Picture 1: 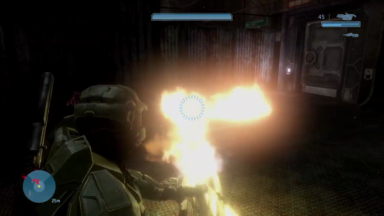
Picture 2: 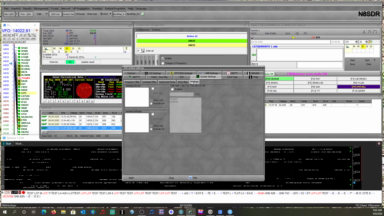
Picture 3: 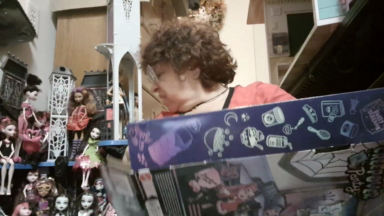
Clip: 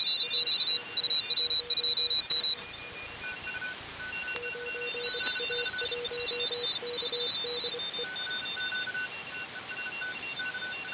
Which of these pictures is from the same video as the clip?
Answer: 2